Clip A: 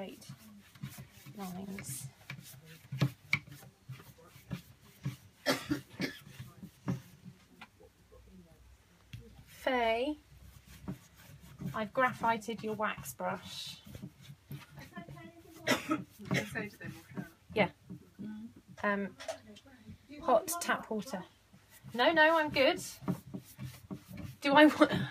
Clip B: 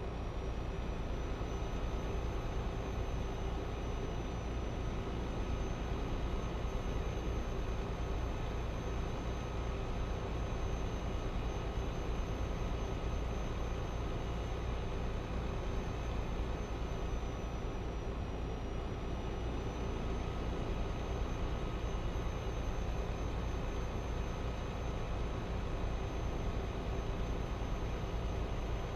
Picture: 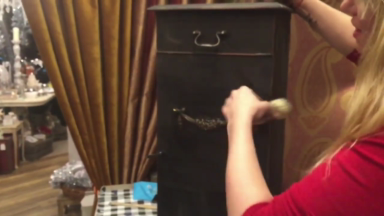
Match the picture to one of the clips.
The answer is A